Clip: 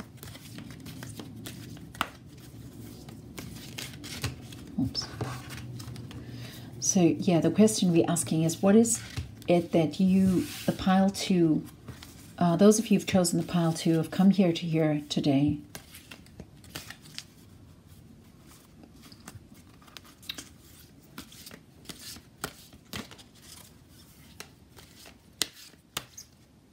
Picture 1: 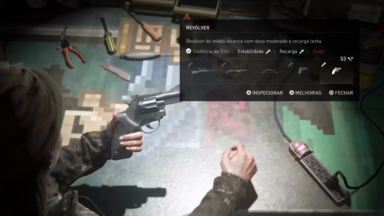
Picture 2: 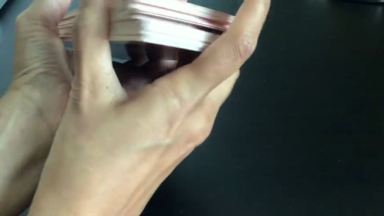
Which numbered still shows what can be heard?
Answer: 2